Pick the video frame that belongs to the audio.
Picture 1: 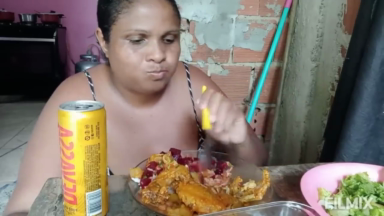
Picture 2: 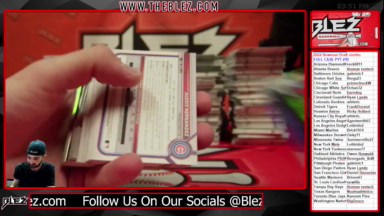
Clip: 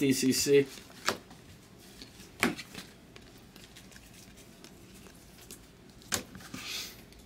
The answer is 2